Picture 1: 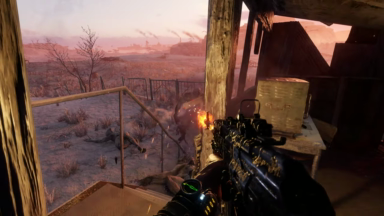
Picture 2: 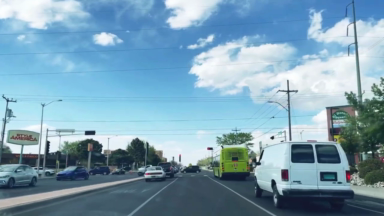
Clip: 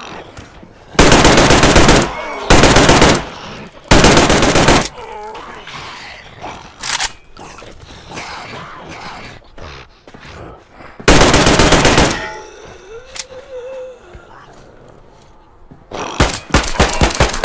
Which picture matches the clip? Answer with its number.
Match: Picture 1